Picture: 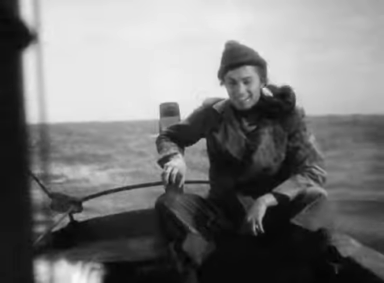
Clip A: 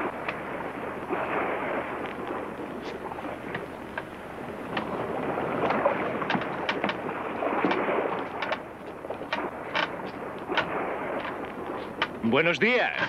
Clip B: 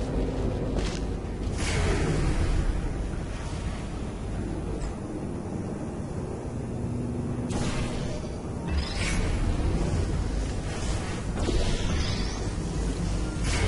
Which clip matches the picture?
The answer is A